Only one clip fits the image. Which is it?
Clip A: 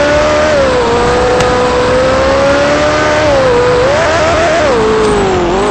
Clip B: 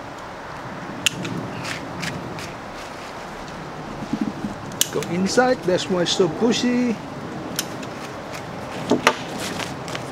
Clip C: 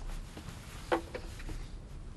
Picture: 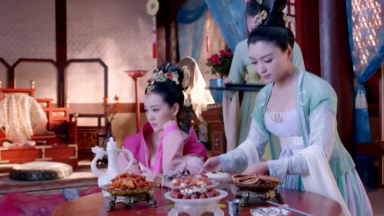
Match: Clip C